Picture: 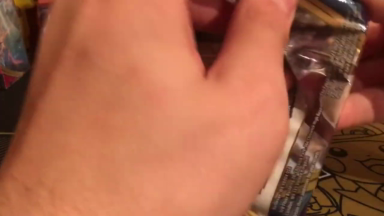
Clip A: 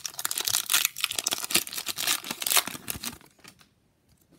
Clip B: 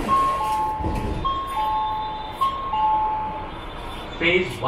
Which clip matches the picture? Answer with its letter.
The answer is A